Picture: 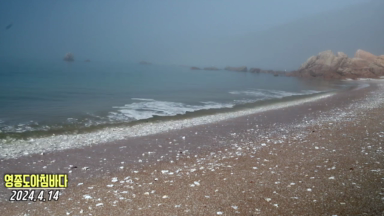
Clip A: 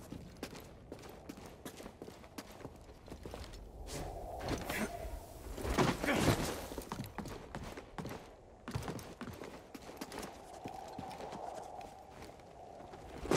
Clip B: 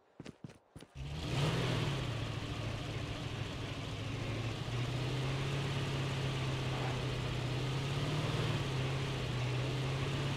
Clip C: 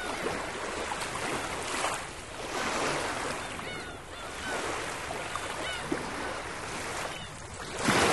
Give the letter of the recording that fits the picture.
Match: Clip C